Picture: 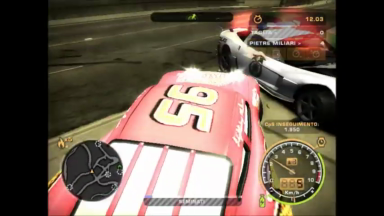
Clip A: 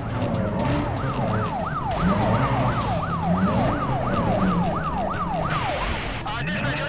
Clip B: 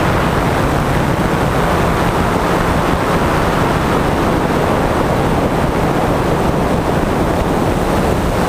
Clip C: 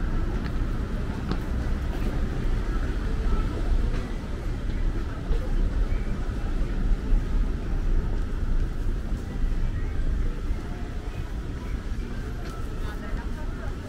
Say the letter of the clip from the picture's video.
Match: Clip A